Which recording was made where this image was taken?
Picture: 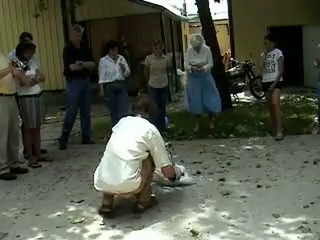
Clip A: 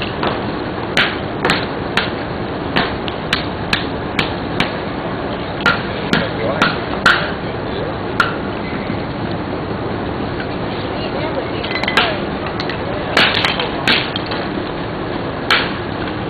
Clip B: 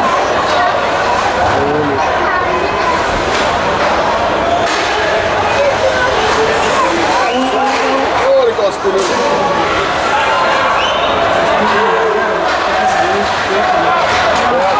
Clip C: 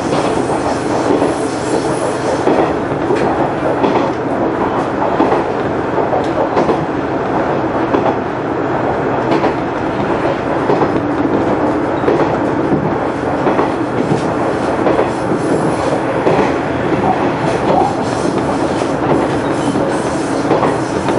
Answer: A